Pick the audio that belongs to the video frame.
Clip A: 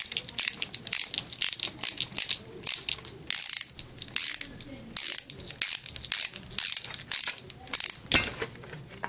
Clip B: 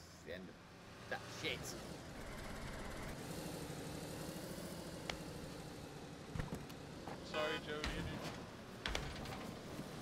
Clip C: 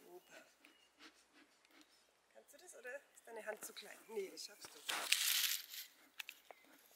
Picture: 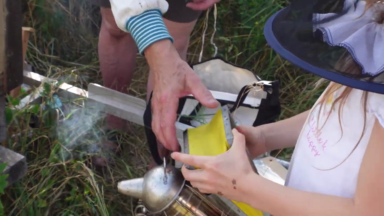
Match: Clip C